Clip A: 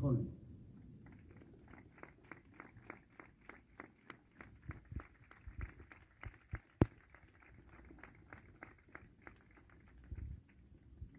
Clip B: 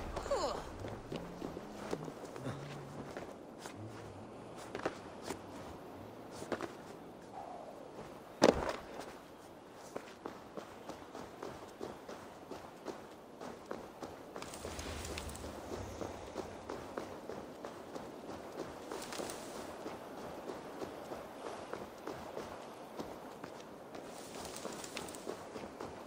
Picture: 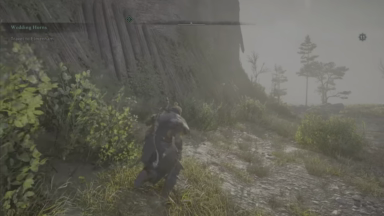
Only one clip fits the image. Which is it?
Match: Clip B